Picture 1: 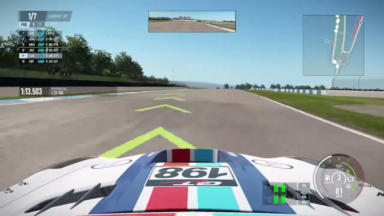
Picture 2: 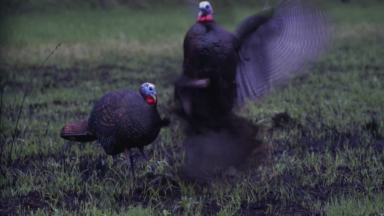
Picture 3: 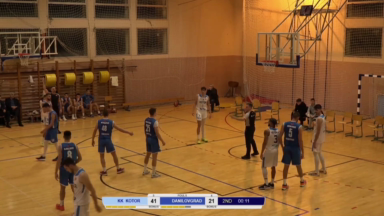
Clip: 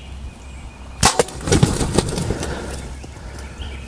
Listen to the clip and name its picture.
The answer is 2